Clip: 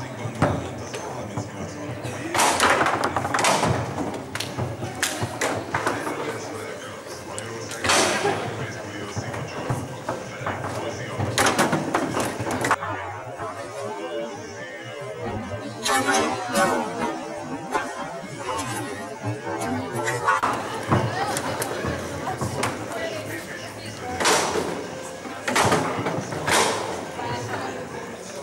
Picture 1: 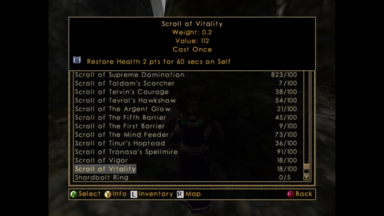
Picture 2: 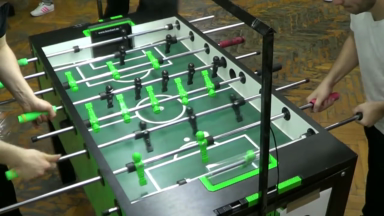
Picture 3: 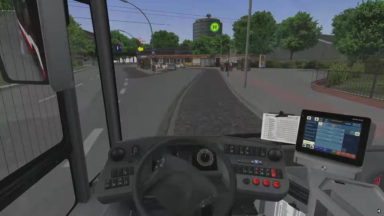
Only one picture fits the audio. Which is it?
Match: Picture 2